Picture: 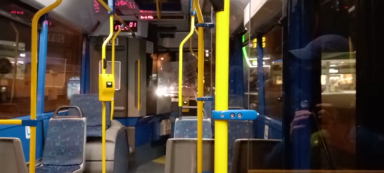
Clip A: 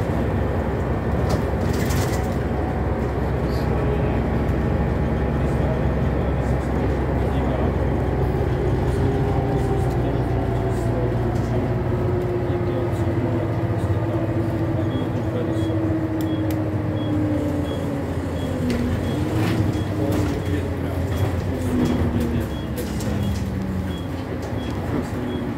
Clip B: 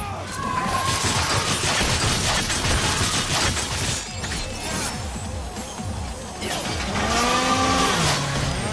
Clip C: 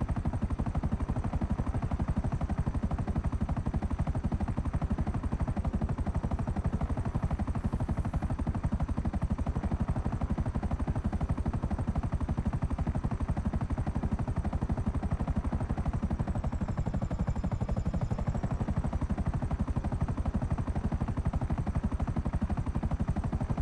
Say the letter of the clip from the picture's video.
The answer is A